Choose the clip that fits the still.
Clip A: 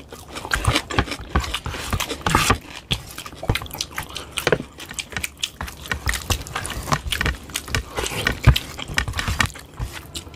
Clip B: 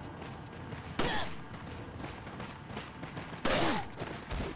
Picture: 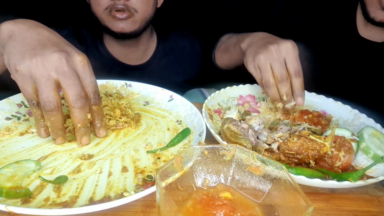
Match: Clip A